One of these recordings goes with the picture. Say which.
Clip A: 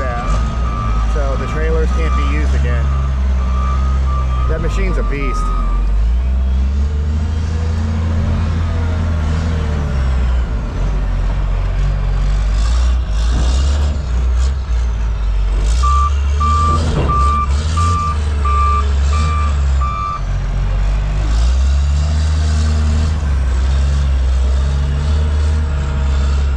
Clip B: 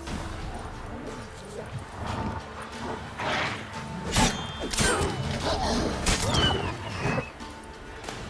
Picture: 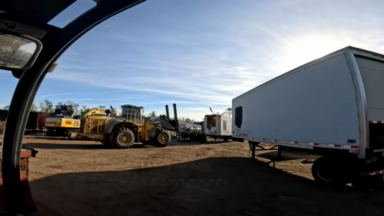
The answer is A